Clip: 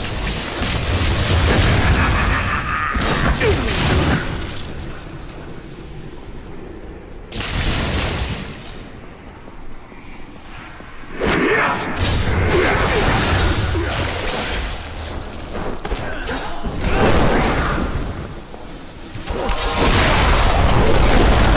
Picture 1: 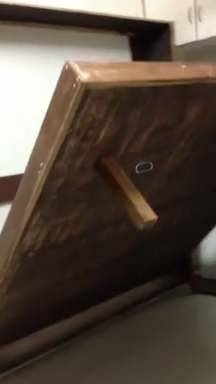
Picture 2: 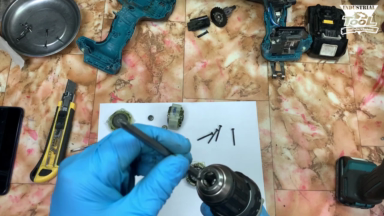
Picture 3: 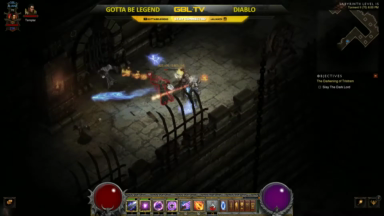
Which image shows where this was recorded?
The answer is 3